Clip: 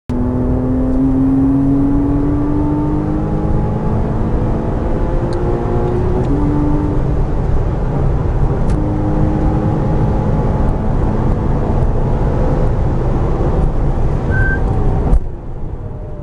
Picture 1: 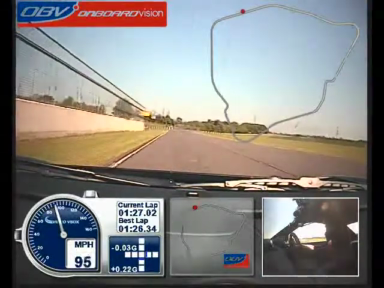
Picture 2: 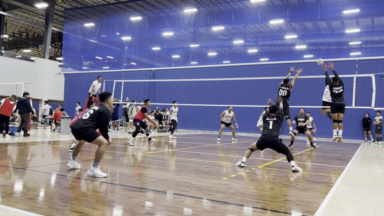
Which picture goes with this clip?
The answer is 1